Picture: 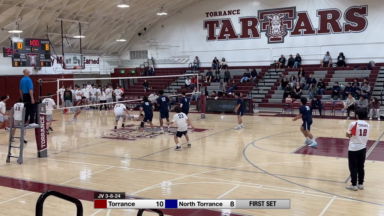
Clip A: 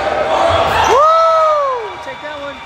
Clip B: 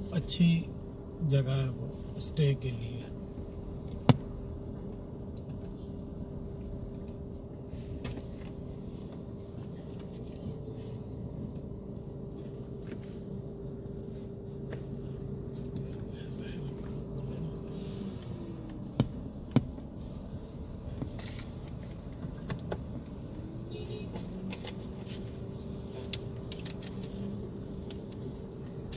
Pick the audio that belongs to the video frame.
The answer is A